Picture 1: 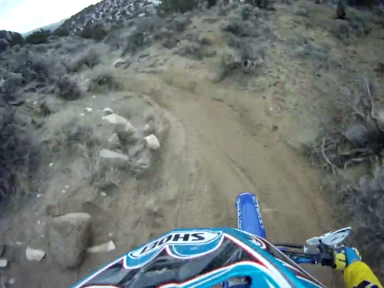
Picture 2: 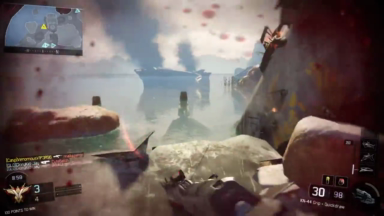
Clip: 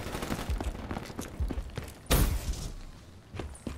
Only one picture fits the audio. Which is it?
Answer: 2